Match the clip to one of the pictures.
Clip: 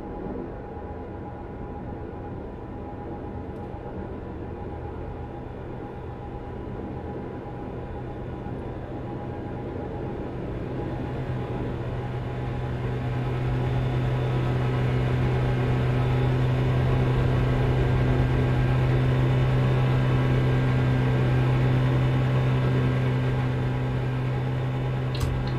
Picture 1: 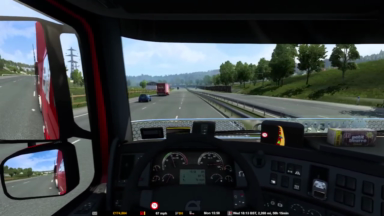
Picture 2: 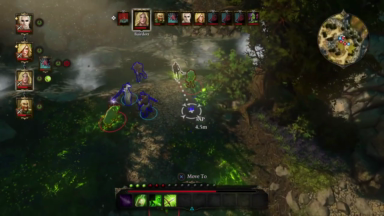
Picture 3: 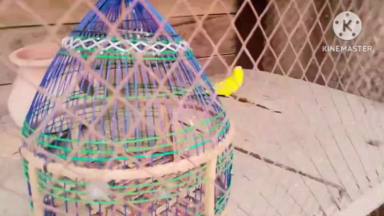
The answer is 1